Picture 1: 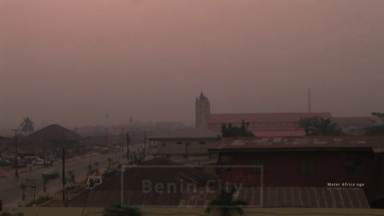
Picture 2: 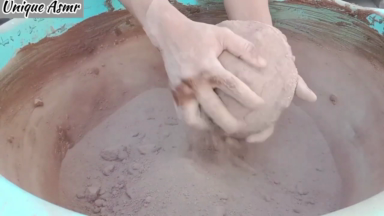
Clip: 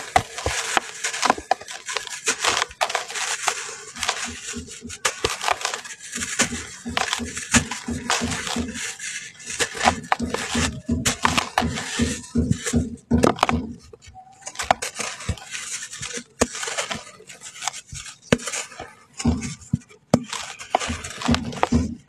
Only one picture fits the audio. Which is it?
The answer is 2